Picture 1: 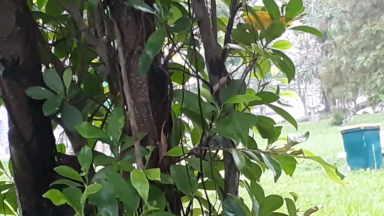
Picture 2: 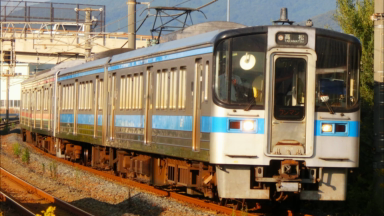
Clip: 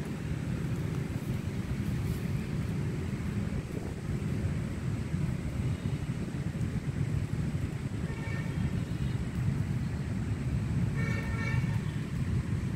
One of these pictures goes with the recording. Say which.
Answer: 1